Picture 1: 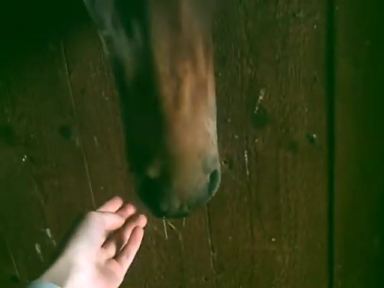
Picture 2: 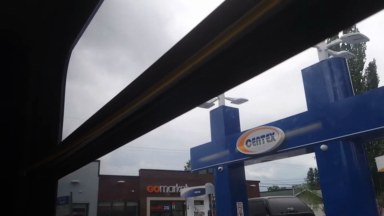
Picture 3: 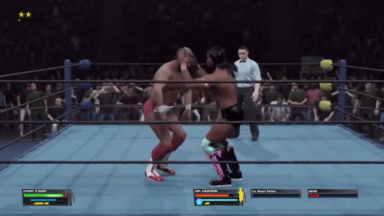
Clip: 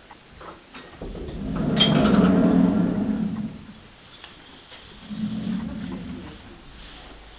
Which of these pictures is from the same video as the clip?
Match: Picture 1